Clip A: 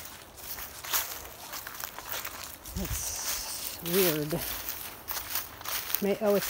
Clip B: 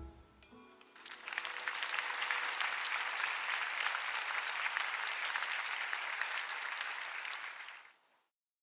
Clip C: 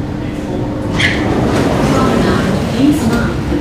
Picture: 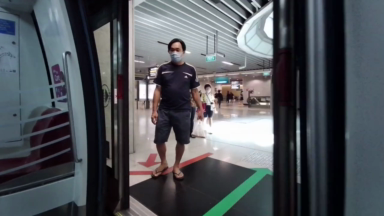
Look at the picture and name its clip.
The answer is C